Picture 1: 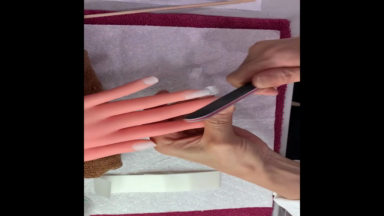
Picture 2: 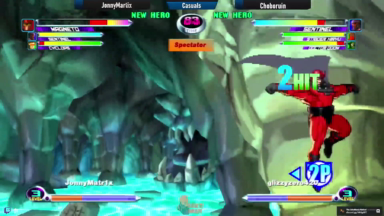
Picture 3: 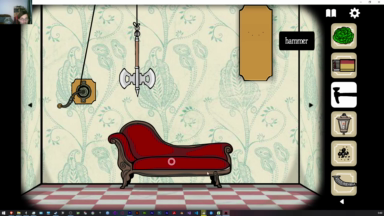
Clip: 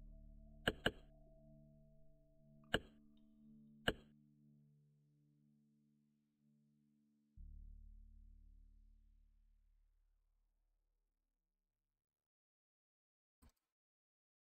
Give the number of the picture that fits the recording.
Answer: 3